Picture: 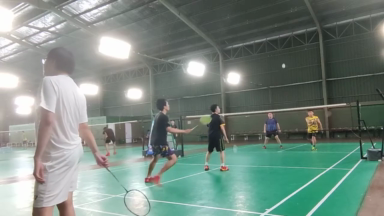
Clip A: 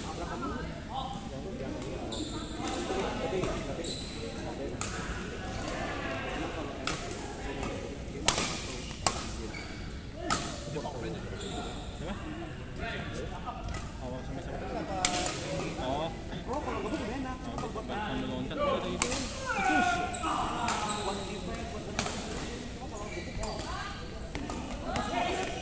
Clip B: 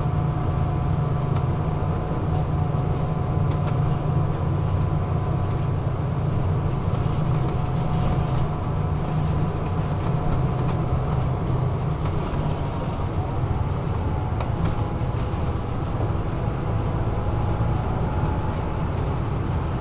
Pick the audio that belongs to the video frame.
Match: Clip A